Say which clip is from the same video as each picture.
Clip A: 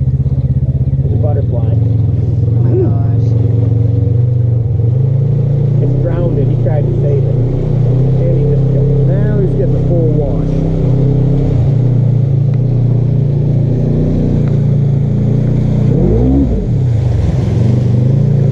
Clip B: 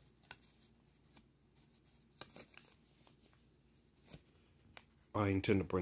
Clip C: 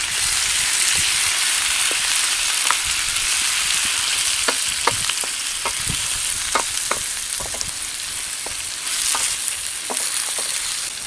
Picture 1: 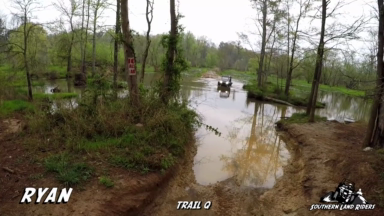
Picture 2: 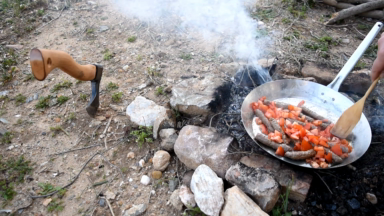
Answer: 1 A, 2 C